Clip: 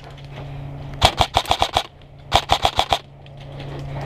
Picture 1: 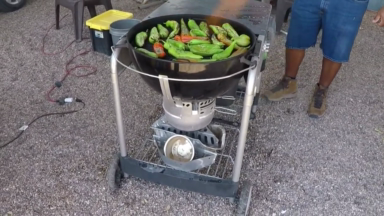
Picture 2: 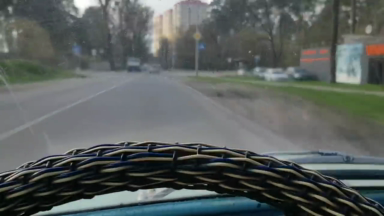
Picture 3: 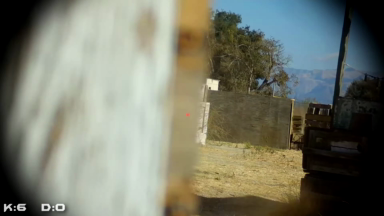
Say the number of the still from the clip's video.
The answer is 3